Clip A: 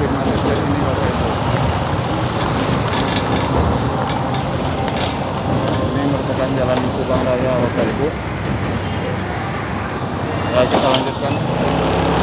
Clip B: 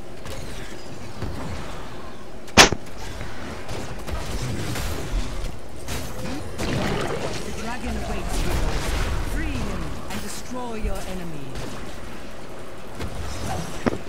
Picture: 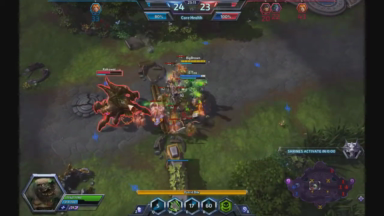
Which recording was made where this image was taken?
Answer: B